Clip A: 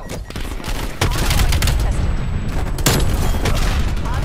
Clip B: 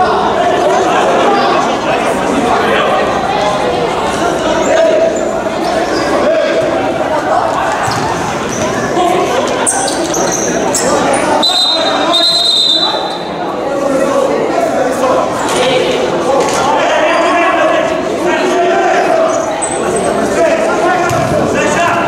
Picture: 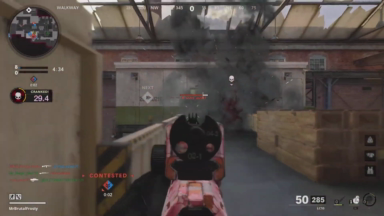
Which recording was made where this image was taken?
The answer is A